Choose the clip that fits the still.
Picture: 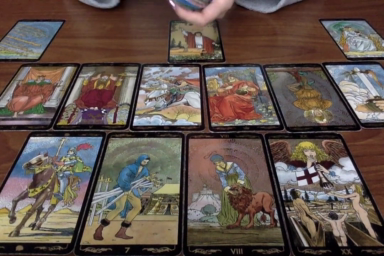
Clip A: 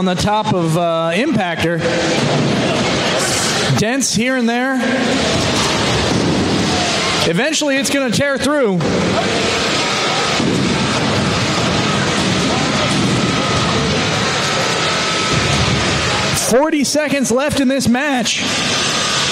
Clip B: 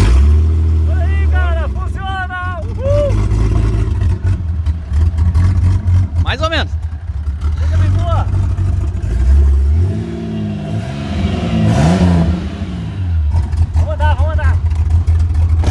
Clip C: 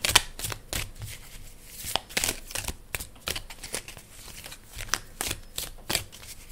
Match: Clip C